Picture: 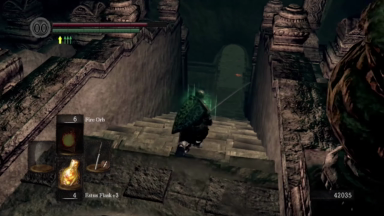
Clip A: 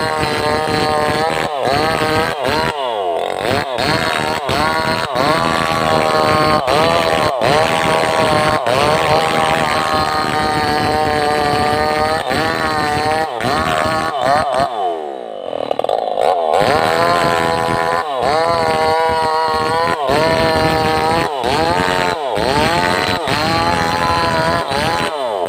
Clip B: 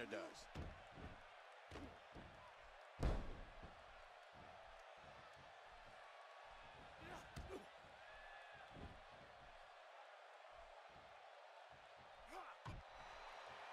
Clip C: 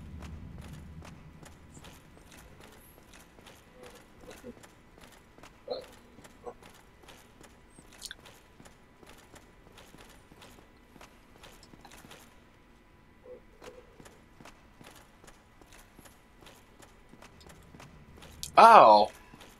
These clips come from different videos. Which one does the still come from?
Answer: C